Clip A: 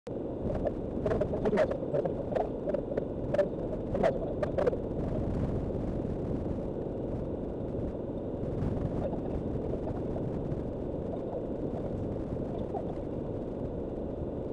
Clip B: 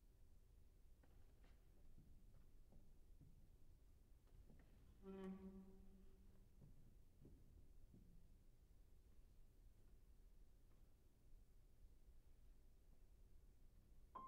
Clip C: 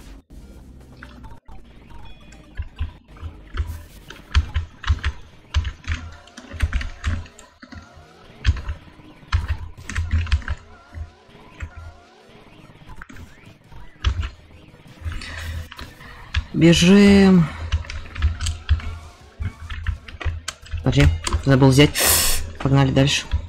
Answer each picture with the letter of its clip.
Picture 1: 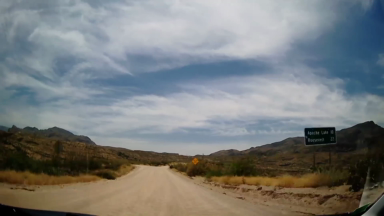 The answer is A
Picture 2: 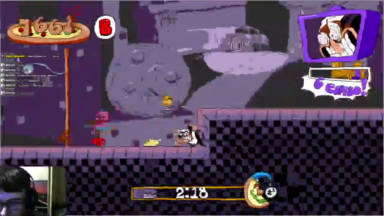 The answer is C